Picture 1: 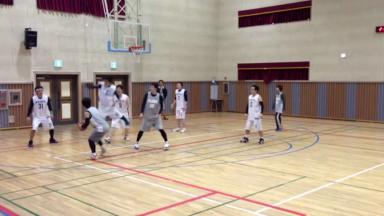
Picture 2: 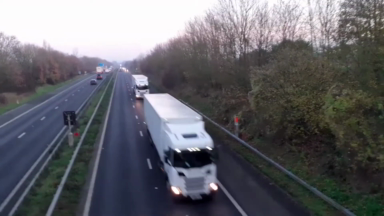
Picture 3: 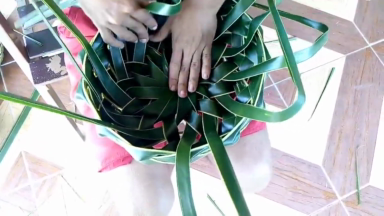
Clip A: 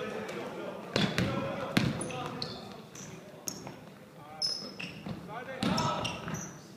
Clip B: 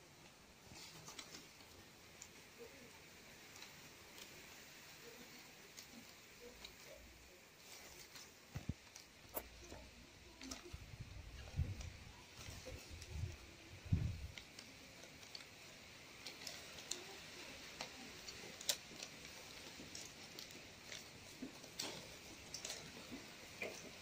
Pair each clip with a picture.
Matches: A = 1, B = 3